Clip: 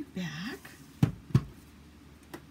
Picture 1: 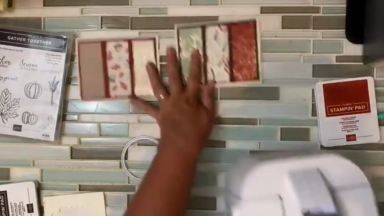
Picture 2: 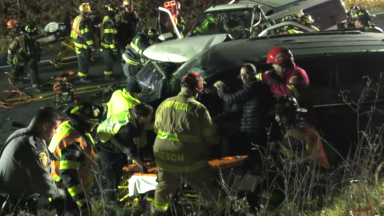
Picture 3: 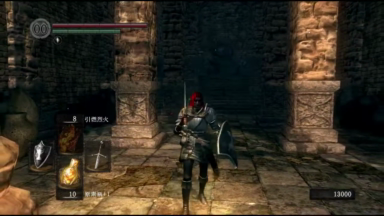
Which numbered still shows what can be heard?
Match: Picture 1